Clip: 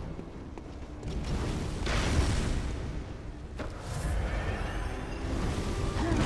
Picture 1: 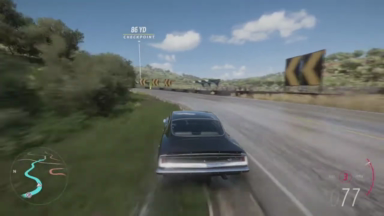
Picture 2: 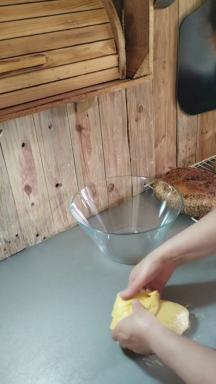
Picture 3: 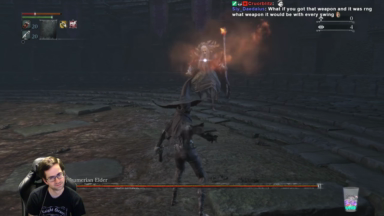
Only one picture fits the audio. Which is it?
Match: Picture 3